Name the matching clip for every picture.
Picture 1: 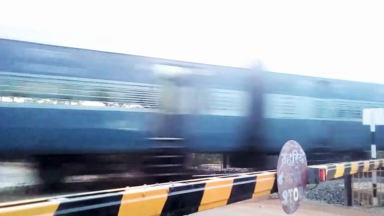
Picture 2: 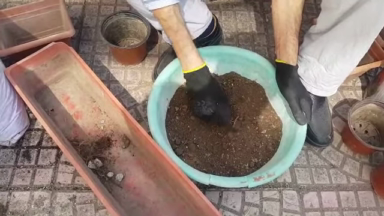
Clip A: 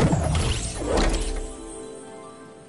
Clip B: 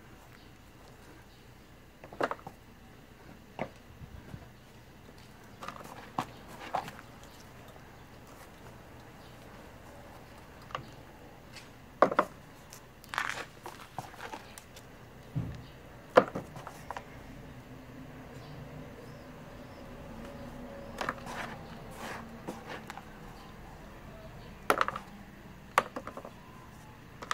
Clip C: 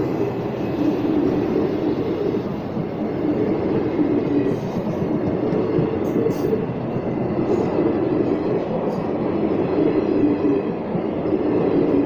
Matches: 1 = C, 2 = B